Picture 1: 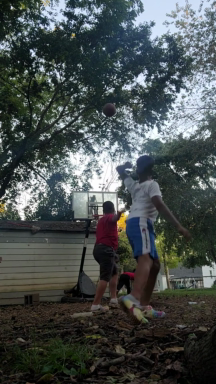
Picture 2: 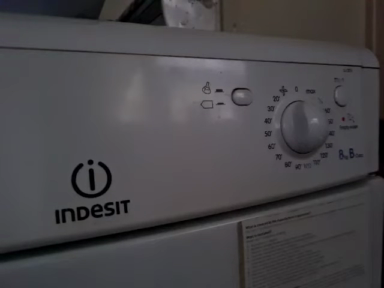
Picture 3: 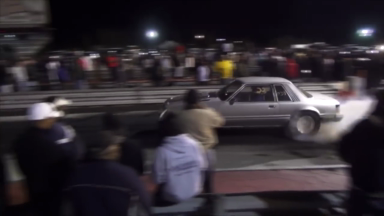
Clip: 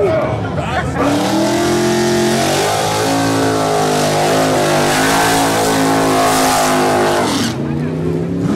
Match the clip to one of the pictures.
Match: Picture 3